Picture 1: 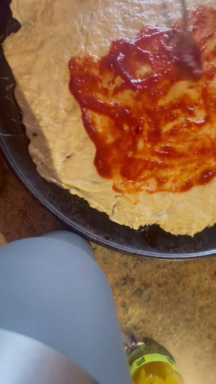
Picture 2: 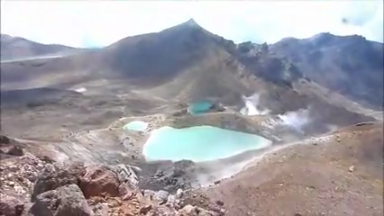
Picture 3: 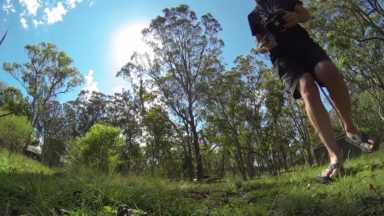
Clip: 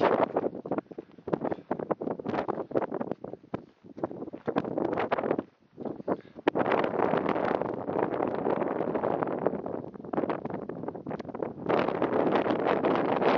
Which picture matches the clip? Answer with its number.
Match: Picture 2